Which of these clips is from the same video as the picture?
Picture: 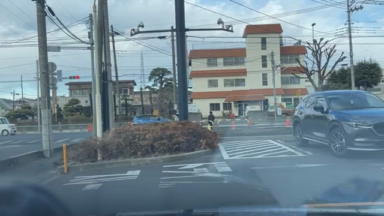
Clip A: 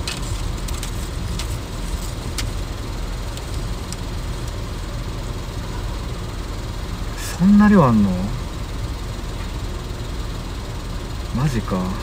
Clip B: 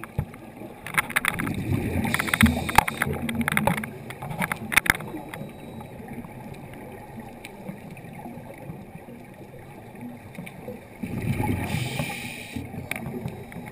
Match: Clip A